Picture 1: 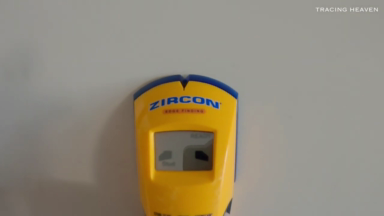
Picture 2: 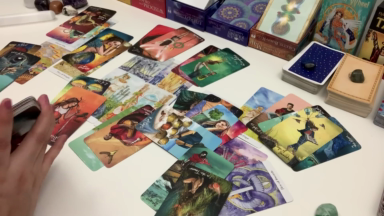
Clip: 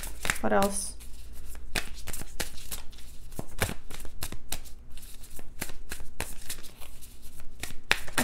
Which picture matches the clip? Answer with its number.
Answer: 2